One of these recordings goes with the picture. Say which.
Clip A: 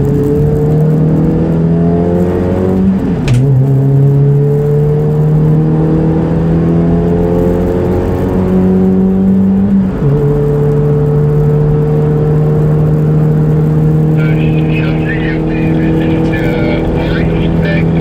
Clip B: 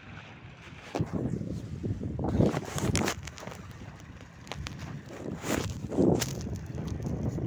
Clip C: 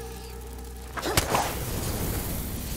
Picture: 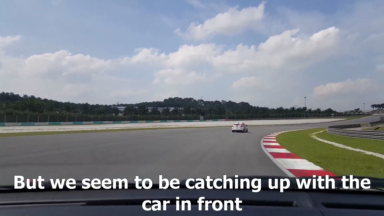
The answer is A